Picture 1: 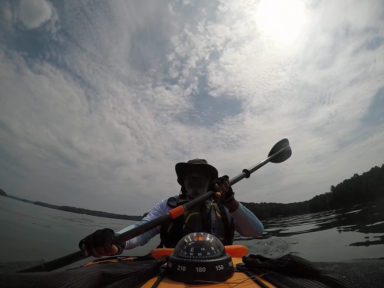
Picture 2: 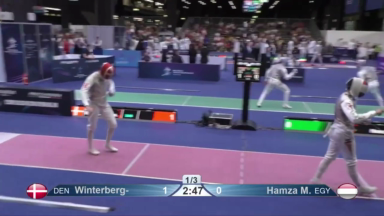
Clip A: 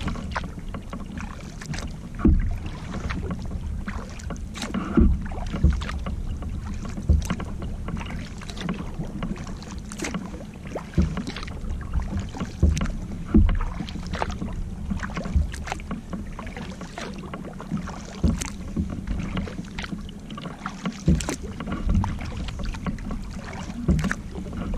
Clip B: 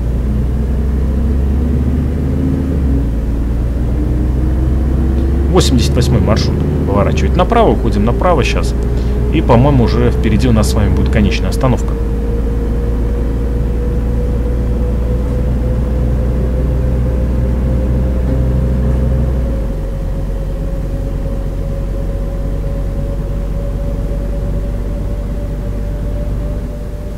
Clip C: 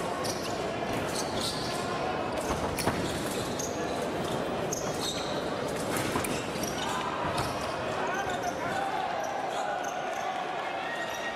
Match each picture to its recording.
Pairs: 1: A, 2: C